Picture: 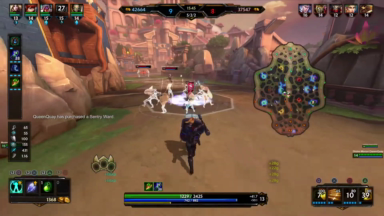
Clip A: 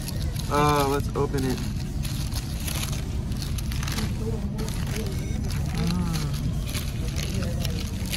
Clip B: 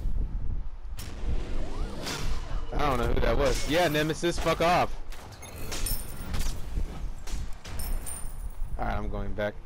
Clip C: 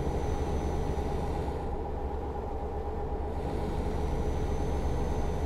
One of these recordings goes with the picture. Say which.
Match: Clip B